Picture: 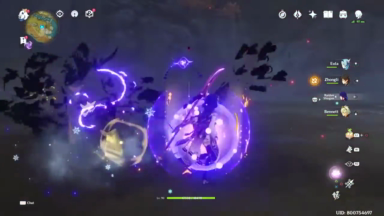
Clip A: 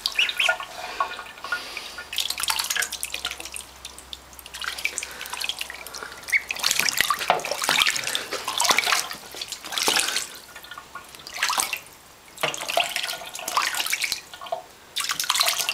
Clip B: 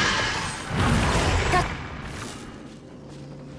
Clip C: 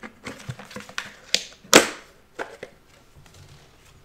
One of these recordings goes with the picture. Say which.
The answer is B